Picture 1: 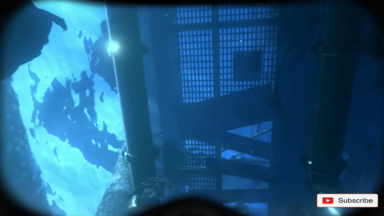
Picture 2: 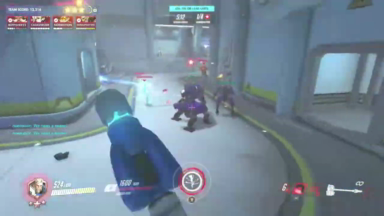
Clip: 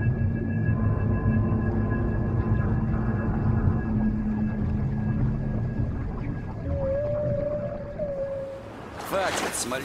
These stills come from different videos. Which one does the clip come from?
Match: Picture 1